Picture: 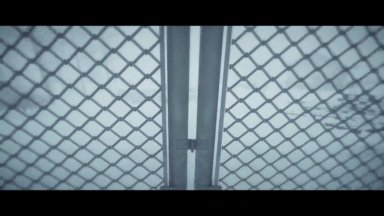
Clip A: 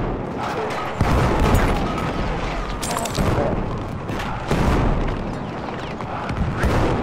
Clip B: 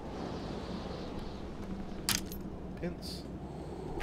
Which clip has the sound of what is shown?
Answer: B